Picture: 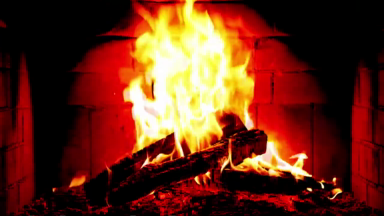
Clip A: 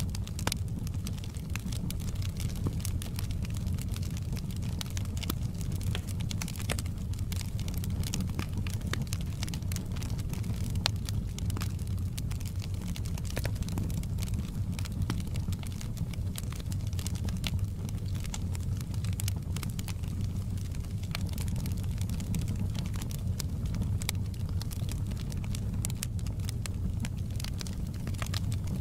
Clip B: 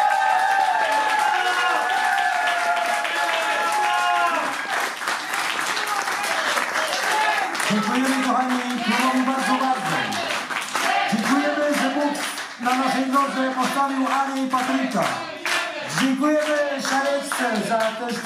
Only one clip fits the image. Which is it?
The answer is A